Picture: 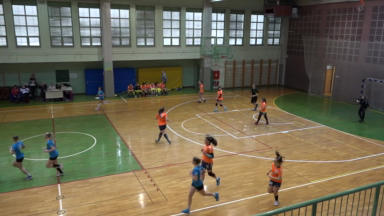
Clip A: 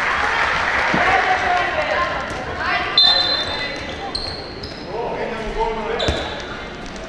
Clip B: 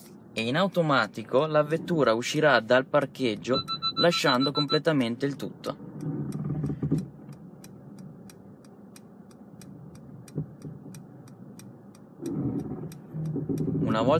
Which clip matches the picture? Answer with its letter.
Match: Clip A